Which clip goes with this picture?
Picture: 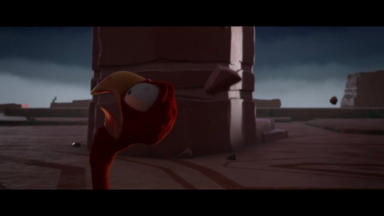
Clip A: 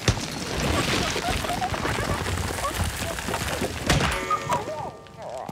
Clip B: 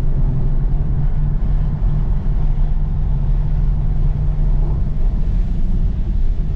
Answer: A